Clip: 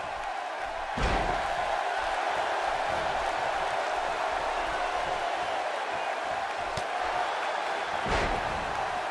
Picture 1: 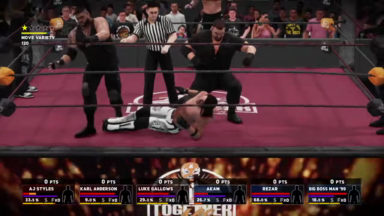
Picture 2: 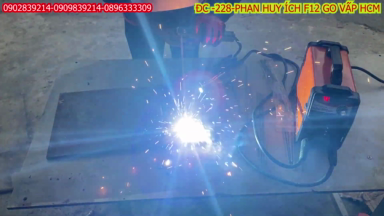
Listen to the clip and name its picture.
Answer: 1